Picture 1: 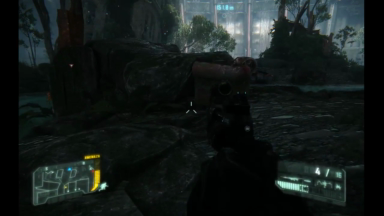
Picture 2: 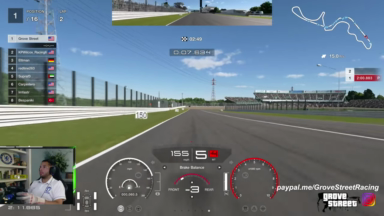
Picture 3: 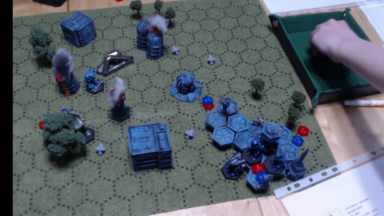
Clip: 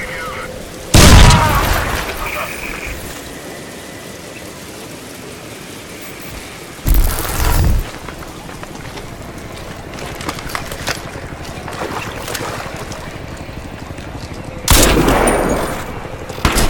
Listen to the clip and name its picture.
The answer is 1